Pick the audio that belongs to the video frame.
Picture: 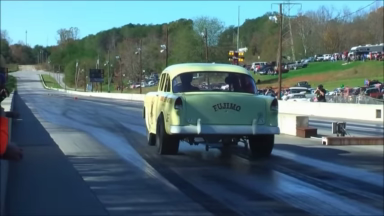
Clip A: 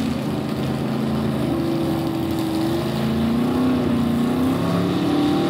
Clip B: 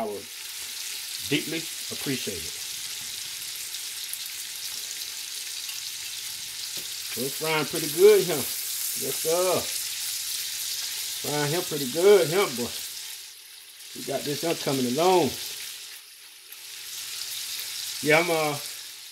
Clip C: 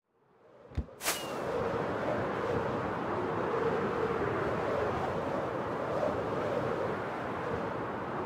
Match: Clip A